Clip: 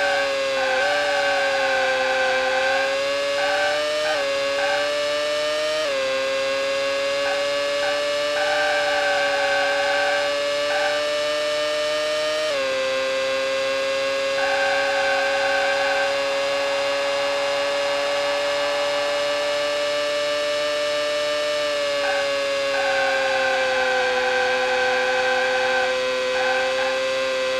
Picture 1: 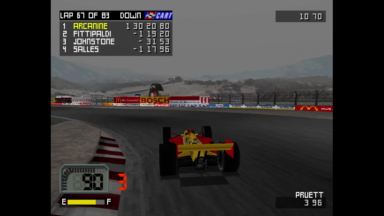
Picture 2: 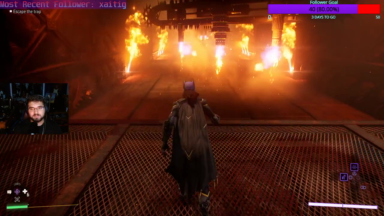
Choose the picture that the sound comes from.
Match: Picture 1